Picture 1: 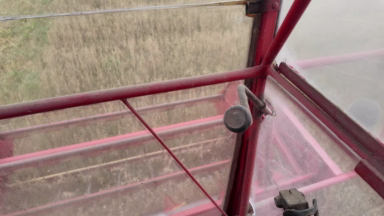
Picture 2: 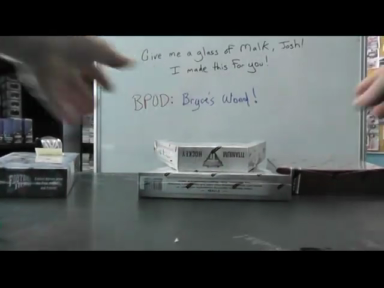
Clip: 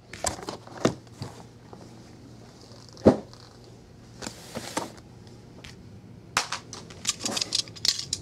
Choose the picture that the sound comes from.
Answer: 2